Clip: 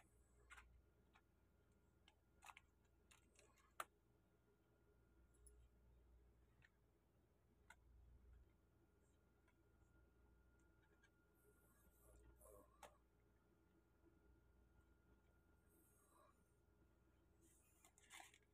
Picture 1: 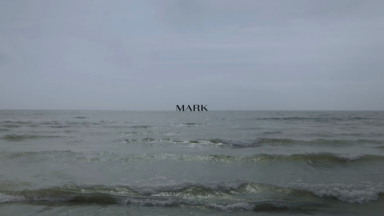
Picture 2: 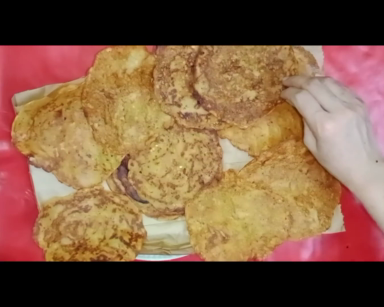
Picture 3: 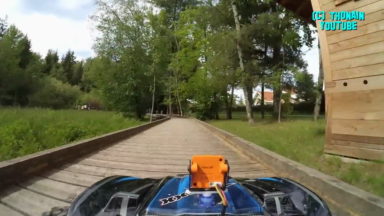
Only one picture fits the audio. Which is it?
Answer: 2